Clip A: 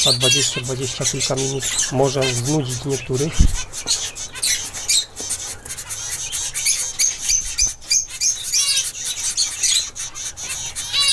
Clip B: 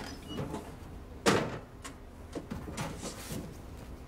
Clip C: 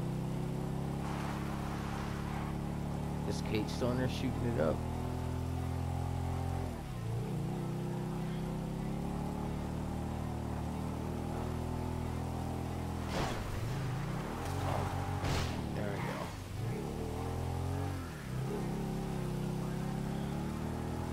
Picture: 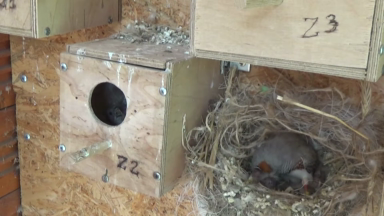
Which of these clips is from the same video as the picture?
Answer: A